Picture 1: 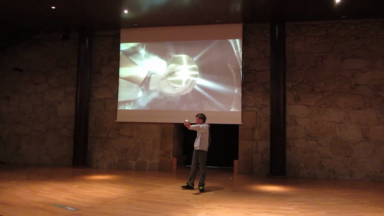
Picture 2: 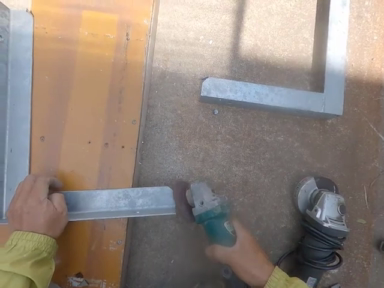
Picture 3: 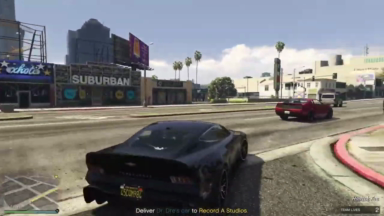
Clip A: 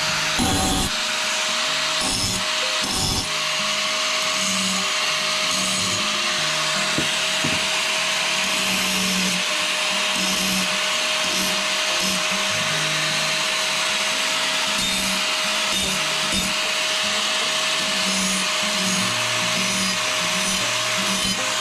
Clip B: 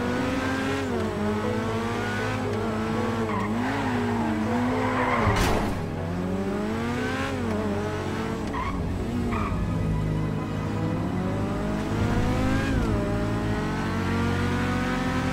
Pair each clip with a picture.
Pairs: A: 2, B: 3